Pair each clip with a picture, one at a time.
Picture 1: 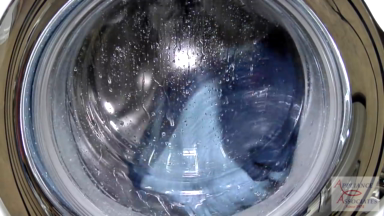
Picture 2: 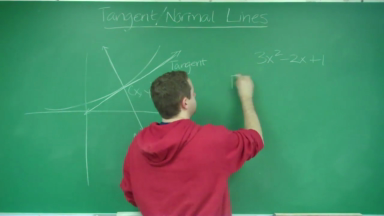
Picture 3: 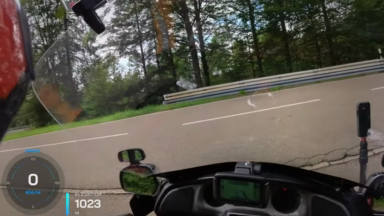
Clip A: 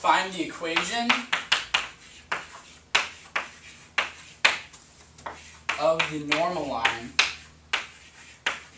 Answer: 2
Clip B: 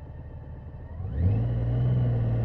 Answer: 3